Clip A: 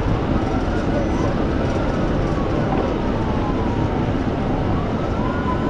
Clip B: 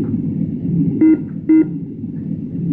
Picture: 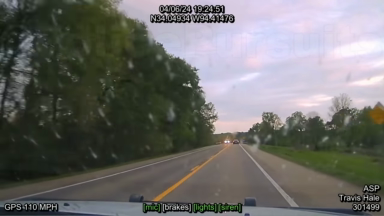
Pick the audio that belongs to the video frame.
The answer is A